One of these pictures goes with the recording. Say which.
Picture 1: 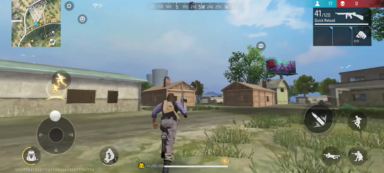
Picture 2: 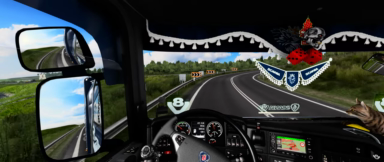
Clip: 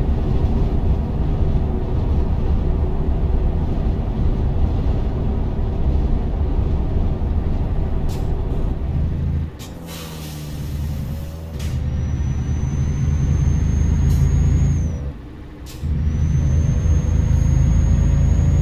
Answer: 2